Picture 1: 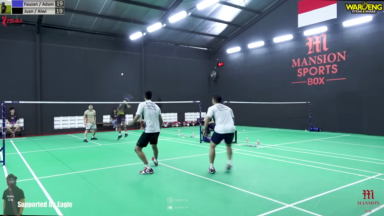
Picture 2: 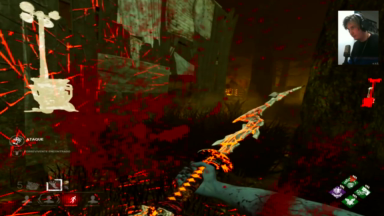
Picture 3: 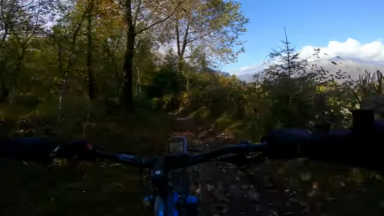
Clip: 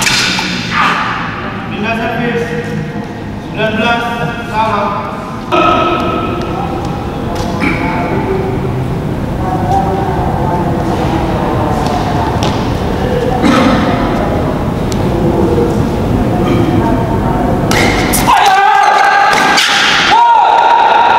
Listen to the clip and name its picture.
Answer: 1